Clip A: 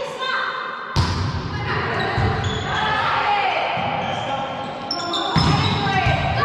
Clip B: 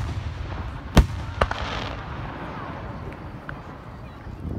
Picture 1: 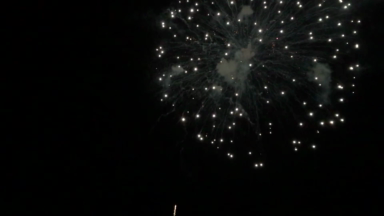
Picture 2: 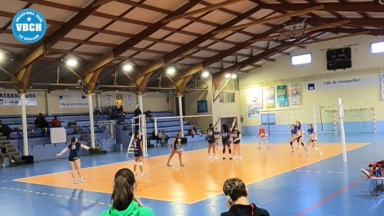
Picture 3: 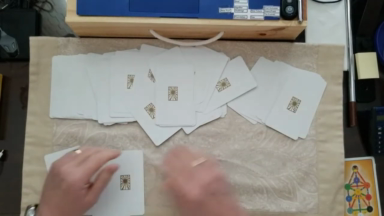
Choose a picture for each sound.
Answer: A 2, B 1